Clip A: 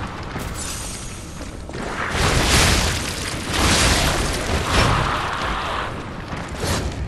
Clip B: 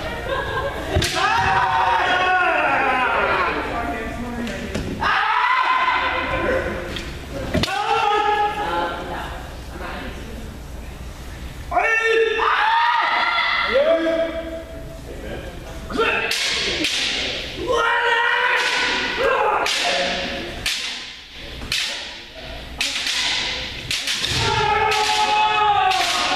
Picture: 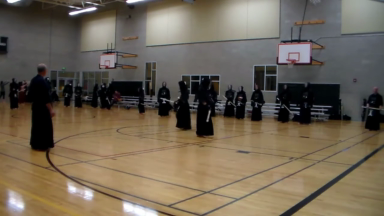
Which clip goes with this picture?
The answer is B